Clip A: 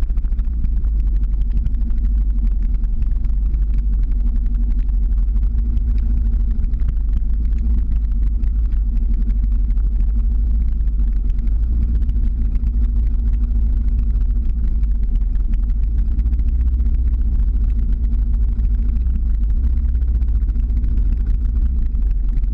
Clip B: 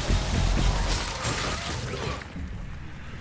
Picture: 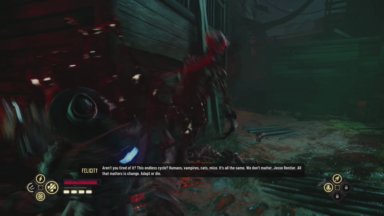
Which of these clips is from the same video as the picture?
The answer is B